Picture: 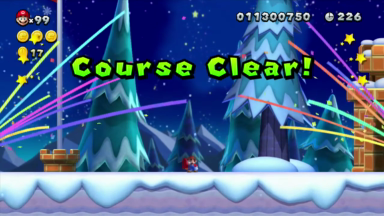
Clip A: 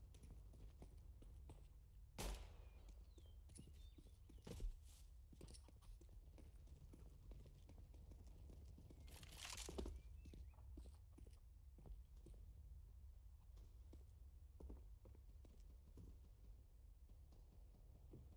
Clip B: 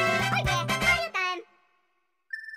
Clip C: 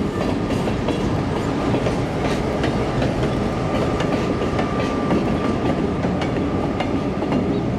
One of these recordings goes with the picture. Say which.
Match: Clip B